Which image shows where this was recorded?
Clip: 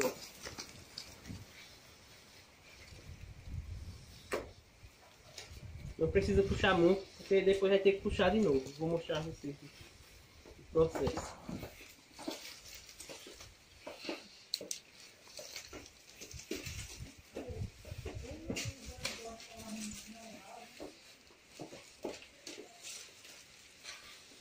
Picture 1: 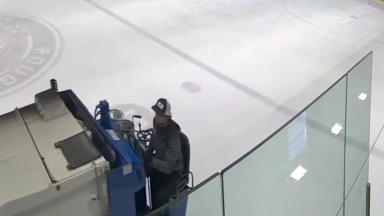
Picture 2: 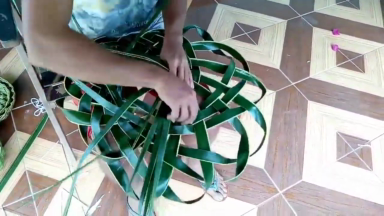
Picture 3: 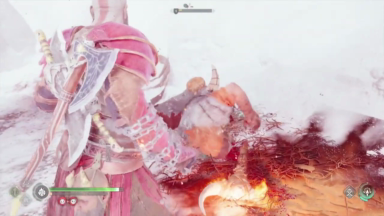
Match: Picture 2